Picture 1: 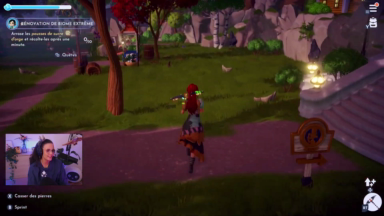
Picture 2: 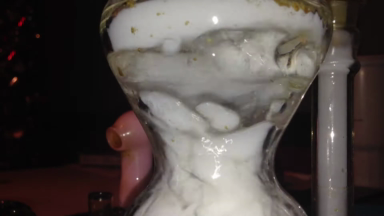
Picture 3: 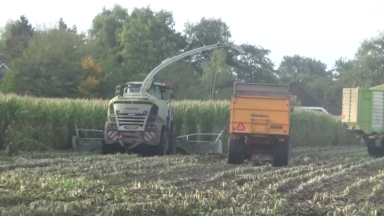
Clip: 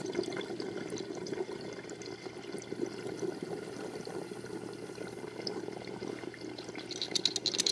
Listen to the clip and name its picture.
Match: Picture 2